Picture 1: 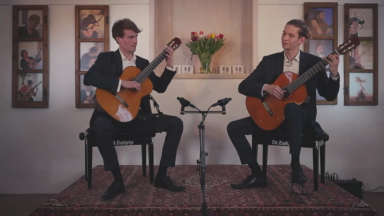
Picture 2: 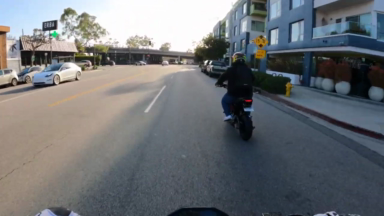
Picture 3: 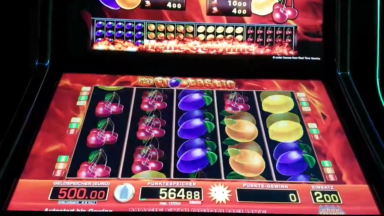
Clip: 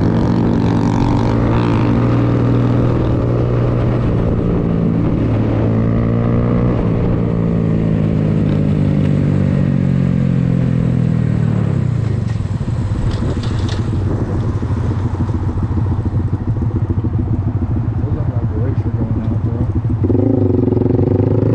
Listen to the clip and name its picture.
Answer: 2